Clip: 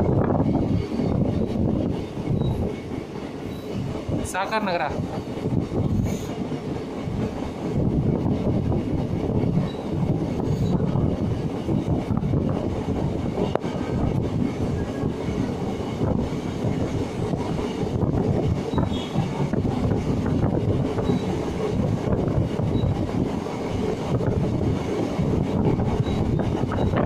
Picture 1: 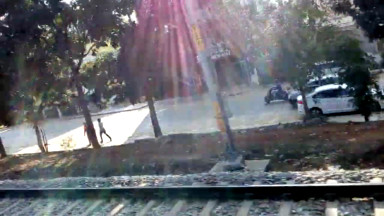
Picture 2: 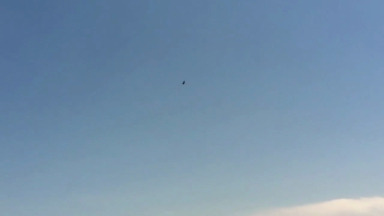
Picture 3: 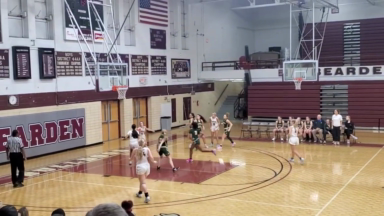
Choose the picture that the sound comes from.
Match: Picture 1